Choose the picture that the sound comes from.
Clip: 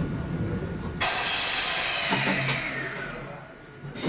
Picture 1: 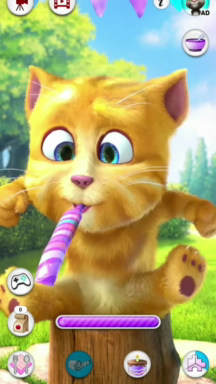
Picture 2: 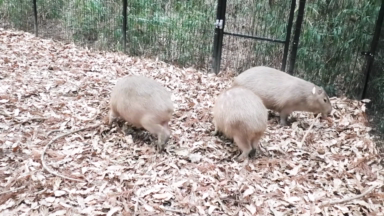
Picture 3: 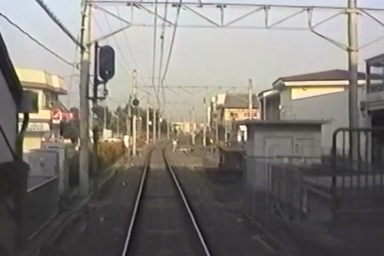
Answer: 3